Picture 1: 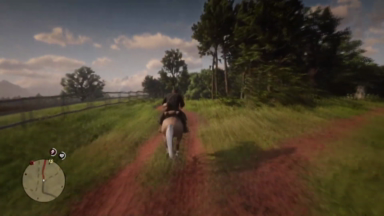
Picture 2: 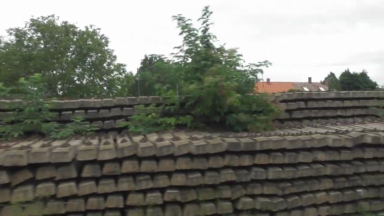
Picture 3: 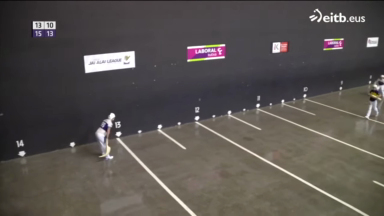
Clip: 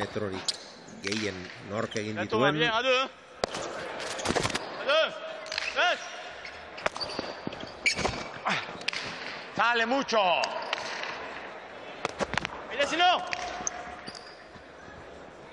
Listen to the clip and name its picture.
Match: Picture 3